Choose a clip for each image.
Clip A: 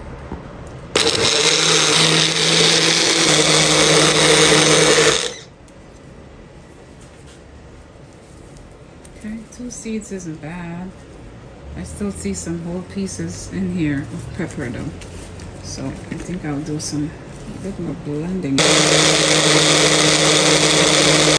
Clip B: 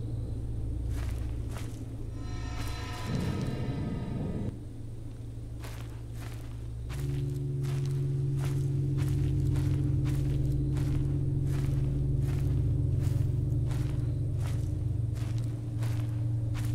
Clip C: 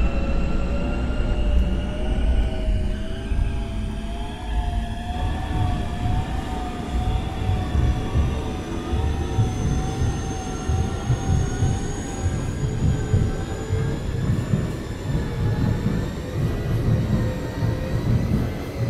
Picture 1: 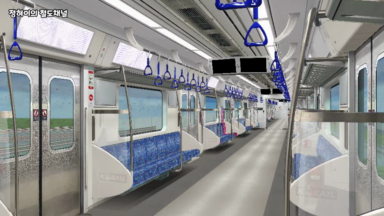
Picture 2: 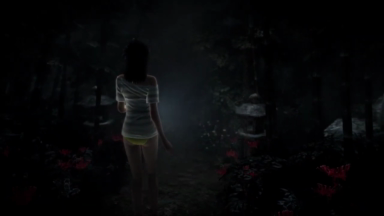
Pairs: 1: C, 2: B